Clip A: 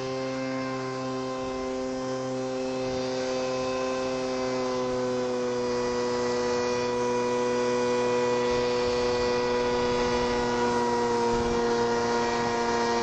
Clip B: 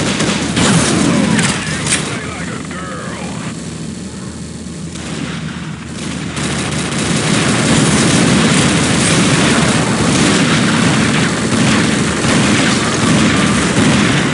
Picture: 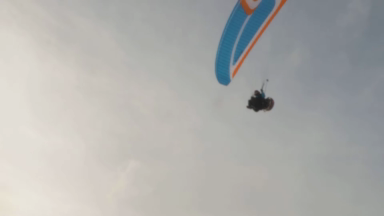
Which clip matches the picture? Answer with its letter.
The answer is A